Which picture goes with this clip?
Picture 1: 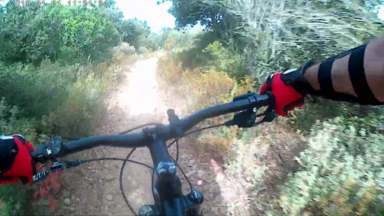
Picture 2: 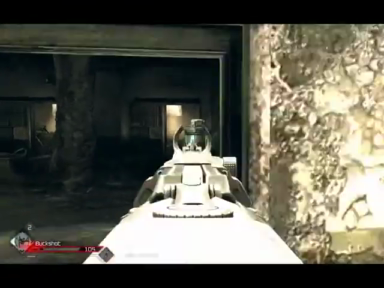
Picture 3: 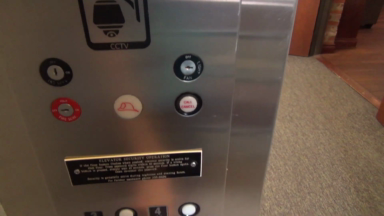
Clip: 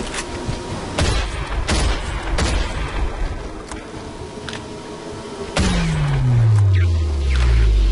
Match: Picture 2